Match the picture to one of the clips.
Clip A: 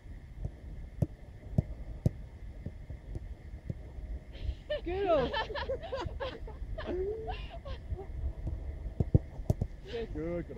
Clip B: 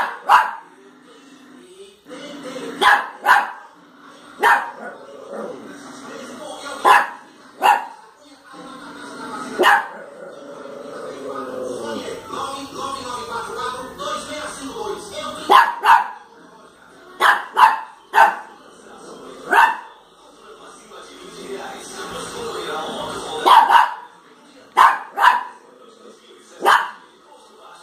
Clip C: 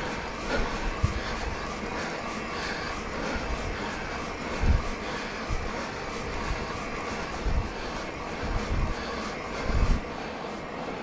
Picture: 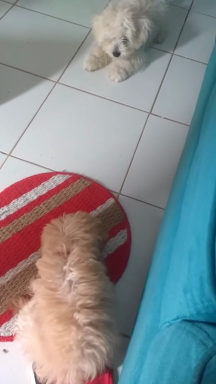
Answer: B